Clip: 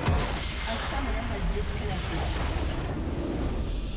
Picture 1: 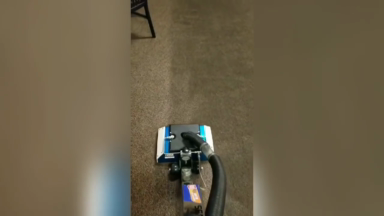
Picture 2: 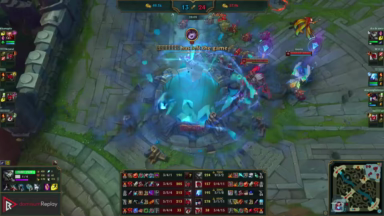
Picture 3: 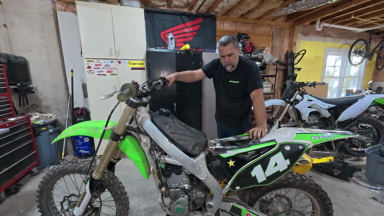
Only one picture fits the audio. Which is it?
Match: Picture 2